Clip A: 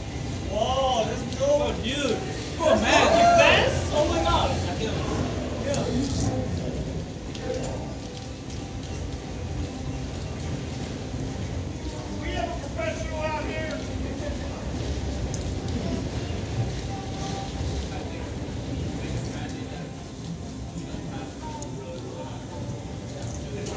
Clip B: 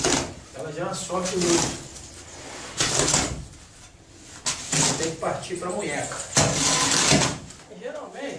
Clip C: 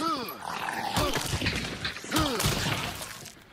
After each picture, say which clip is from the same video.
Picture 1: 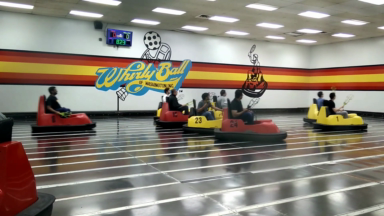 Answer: A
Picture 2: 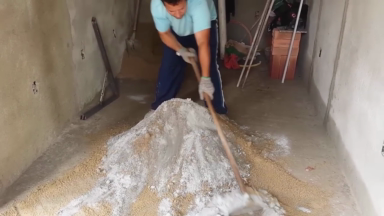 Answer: B